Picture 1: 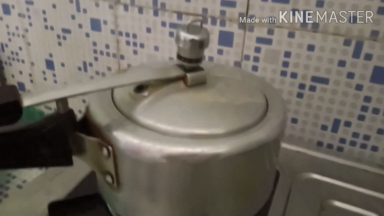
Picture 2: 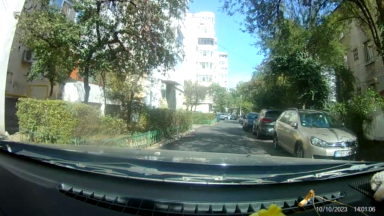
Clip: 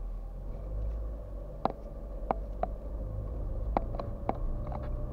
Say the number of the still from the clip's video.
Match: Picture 2